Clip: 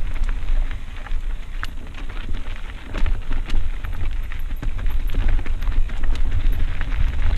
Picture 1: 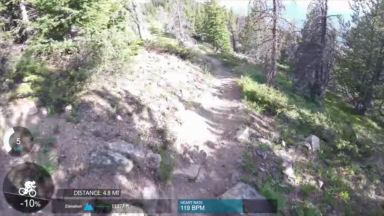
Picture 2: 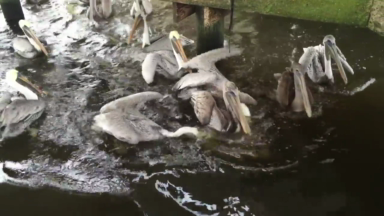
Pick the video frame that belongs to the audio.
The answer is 1